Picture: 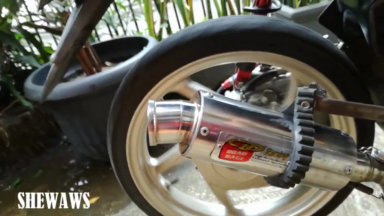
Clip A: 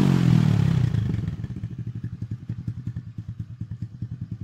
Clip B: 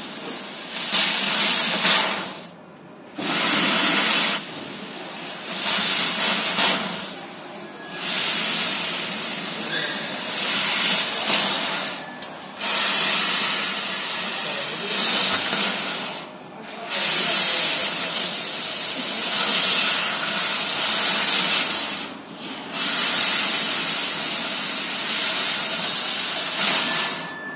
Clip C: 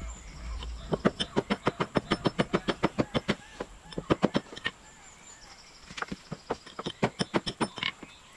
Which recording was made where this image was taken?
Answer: A